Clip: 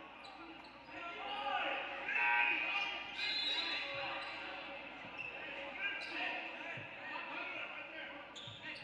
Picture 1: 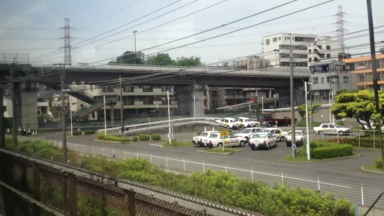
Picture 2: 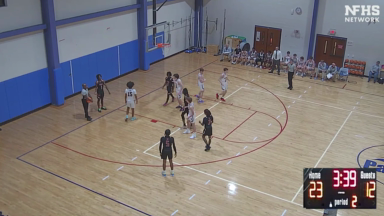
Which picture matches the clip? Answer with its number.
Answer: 2